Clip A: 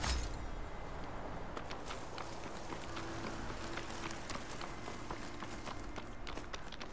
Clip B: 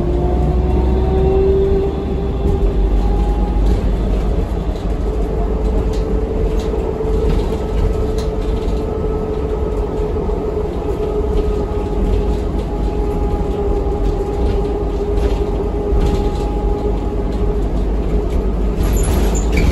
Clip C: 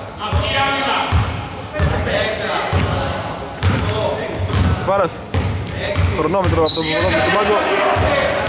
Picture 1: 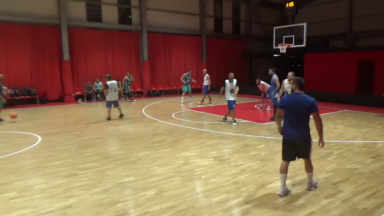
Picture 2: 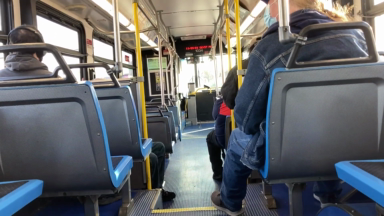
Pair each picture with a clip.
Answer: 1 C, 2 B